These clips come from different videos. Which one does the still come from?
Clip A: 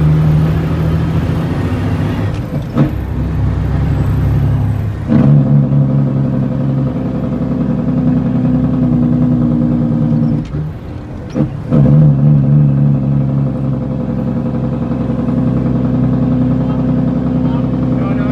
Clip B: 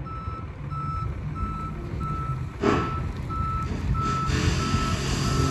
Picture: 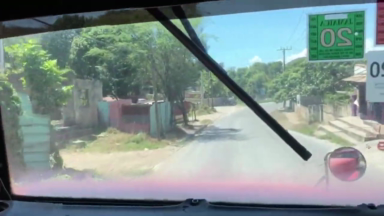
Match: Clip A